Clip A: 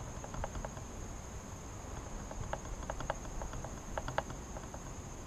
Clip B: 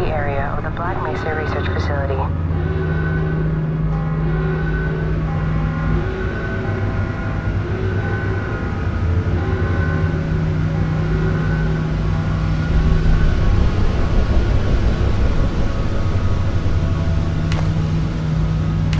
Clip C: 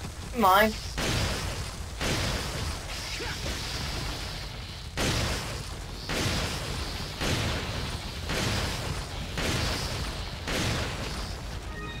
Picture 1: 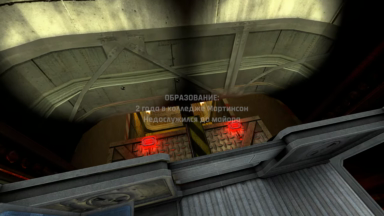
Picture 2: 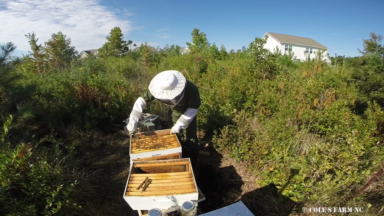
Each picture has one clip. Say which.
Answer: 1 B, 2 A